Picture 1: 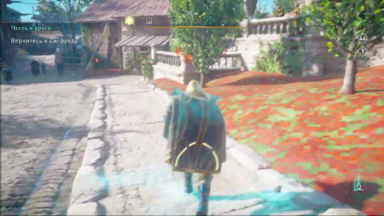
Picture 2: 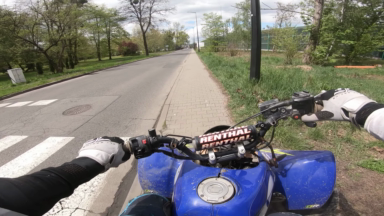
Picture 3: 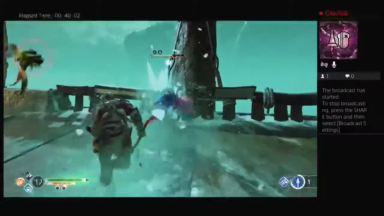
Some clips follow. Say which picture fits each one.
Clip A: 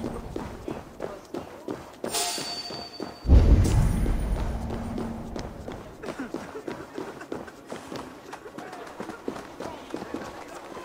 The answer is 1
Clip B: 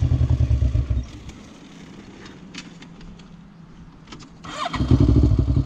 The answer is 2